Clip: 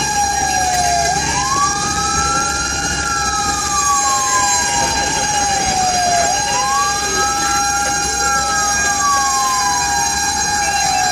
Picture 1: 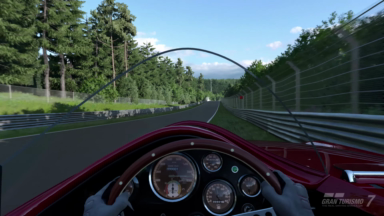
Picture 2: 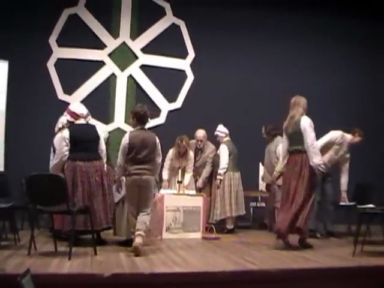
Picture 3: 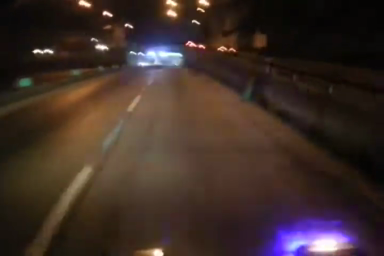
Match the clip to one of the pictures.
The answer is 3